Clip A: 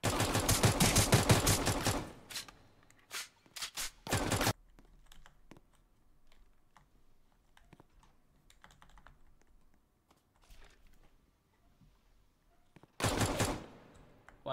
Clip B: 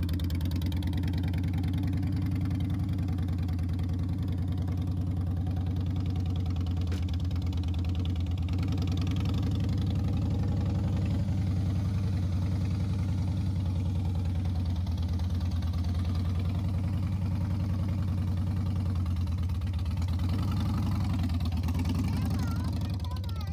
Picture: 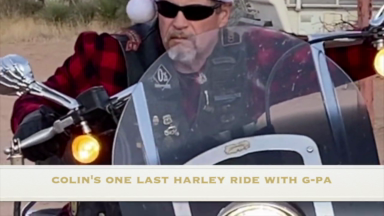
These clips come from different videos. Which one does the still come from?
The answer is B